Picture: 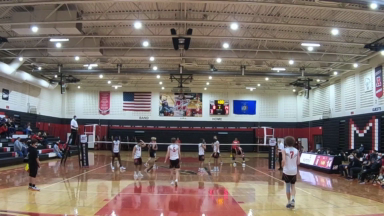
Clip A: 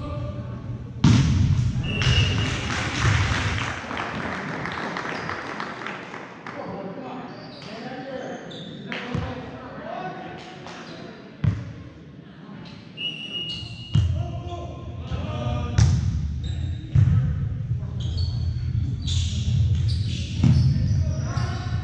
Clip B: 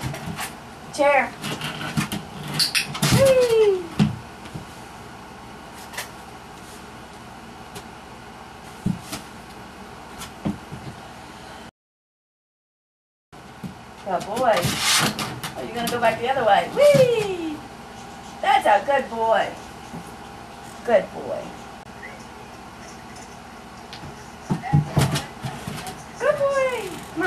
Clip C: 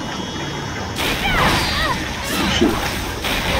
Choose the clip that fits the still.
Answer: A